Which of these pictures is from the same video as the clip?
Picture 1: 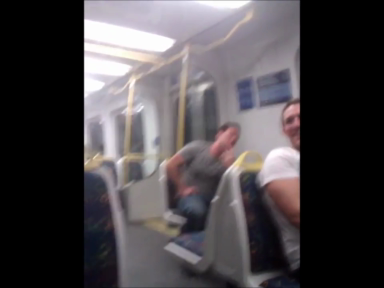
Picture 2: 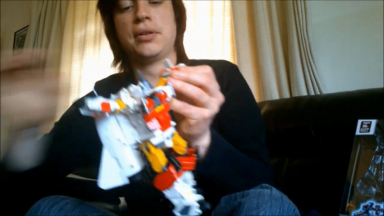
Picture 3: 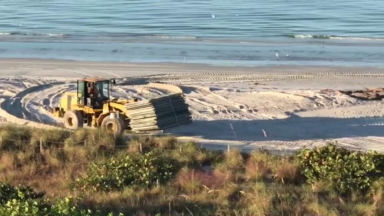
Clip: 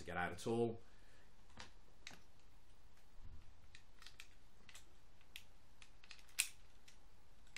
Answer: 2